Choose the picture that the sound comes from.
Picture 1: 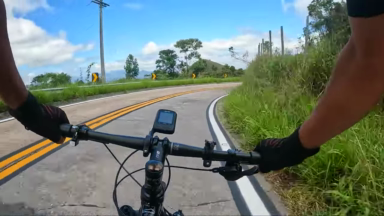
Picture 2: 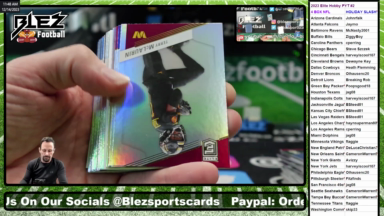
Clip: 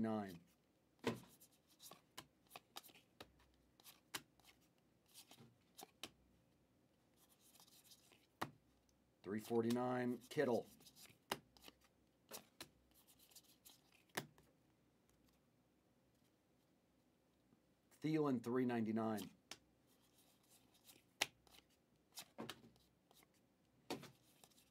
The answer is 2